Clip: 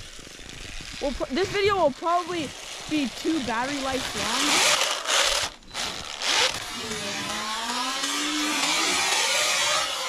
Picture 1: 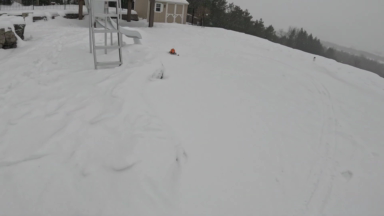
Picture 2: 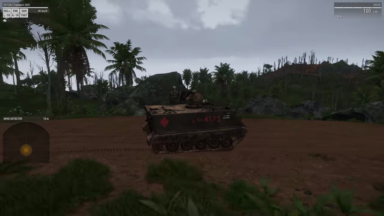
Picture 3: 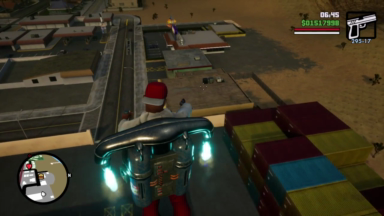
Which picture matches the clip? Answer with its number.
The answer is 1